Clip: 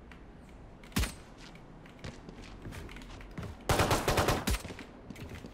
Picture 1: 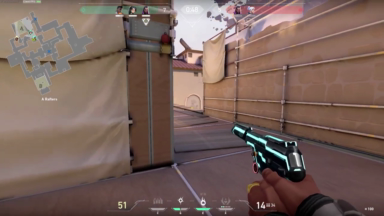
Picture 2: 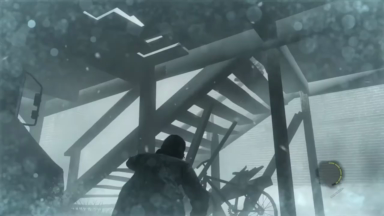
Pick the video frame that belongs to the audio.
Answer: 1